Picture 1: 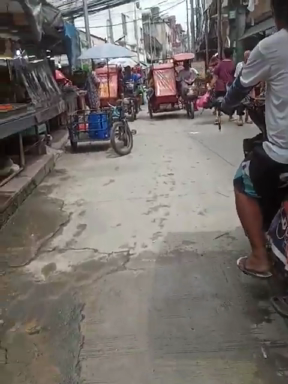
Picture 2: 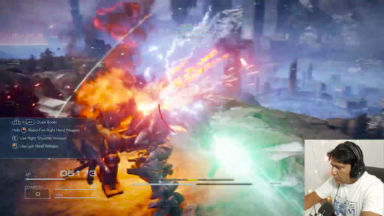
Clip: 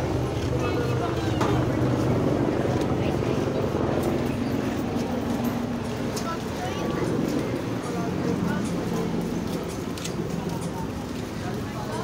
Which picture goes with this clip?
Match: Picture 1